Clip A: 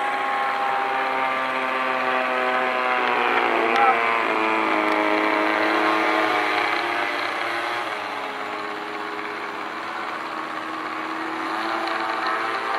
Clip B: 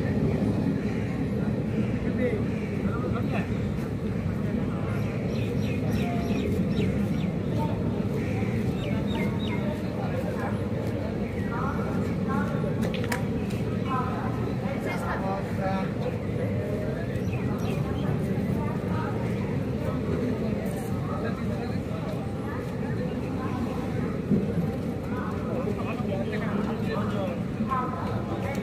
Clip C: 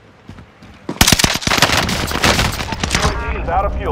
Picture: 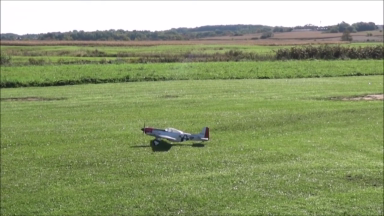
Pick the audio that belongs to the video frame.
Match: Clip A